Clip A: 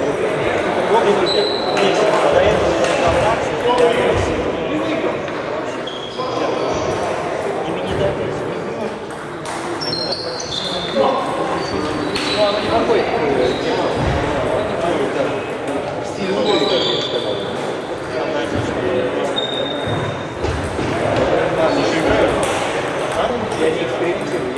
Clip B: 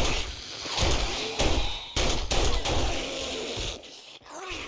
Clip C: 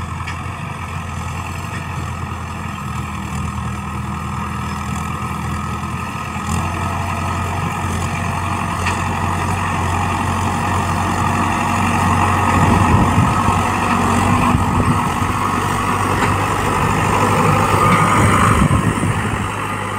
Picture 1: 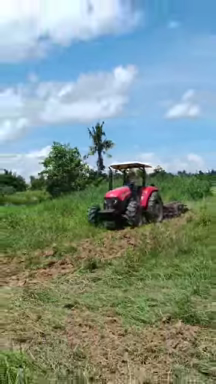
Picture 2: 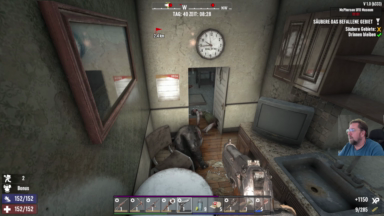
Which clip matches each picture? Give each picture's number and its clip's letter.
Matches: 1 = C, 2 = B